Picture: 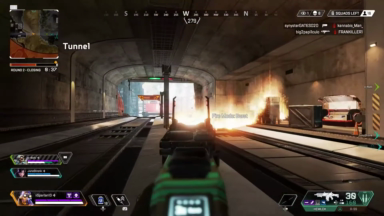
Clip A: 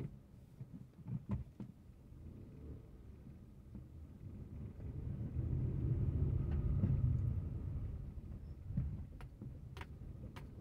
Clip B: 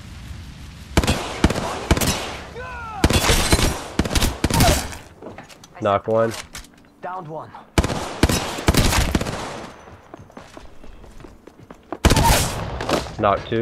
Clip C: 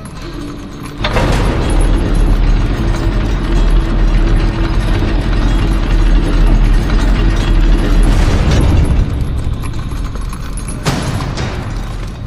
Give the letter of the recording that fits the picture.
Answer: B